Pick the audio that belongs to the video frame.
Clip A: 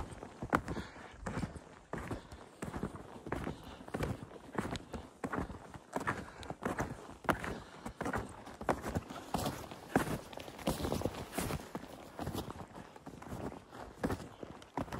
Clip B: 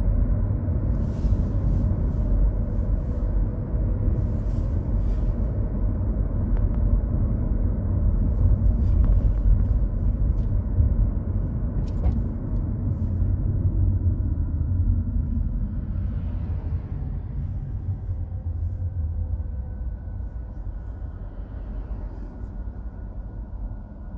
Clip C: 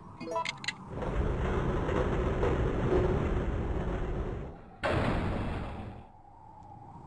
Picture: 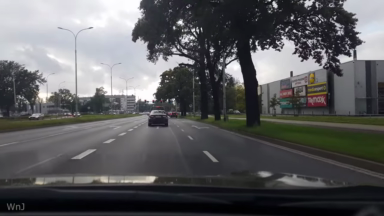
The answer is B